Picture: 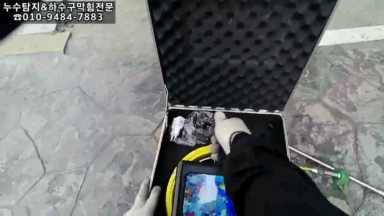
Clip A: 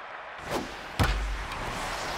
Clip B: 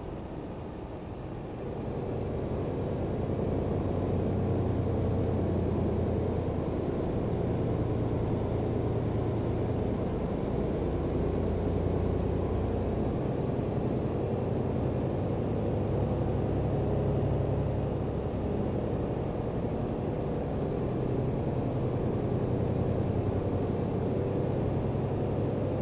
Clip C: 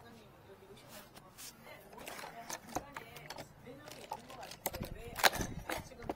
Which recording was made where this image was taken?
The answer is C